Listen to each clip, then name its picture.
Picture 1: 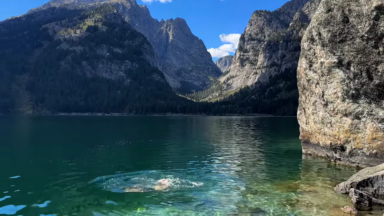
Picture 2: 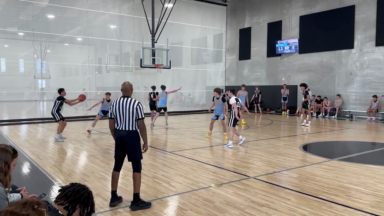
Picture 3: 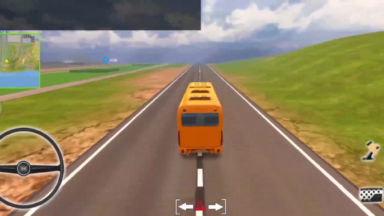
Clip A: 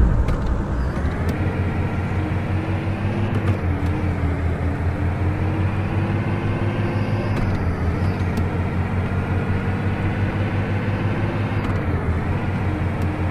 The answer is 3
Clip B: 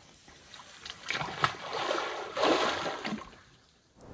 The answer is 1